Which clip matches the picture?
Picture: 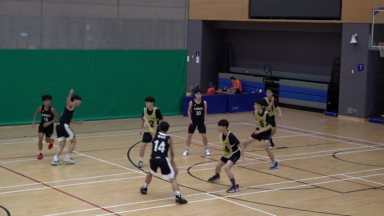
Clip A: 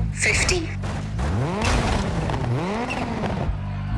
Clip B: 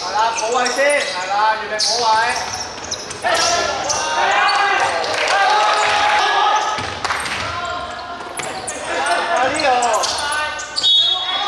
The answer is B